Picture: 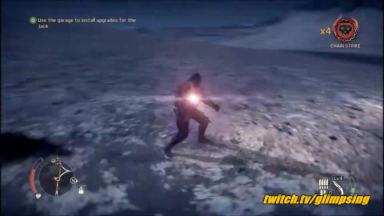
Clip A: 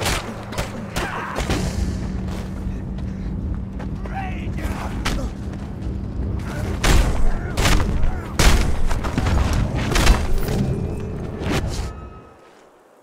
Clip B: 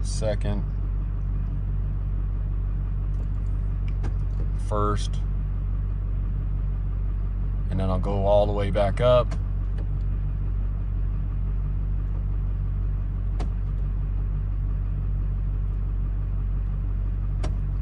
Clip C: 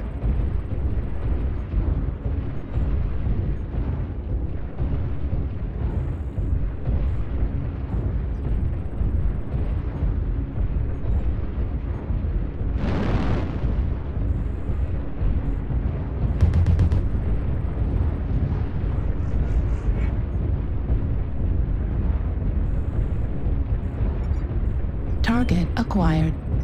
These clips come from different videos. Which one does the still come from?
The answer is A